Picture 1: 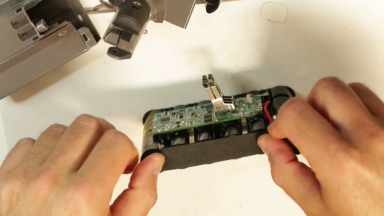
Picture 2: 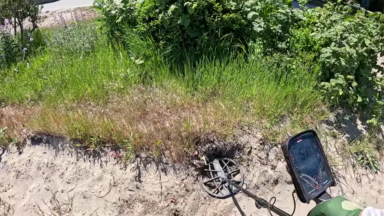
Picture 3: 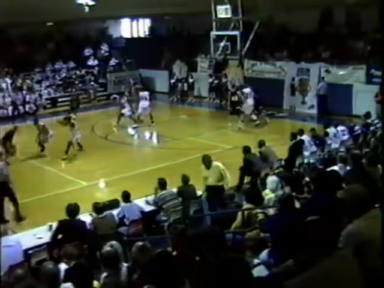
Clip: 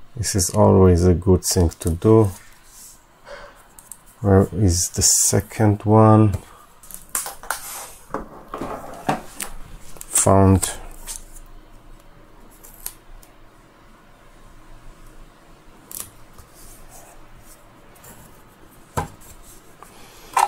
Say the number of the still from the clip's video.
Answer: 1